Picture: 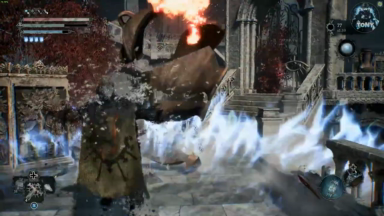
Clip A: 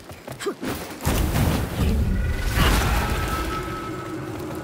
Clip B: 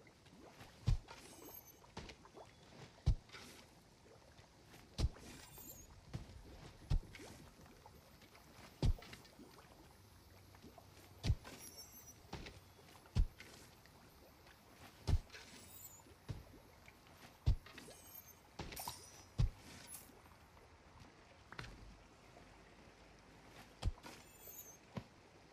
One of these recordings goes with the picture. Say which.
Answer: A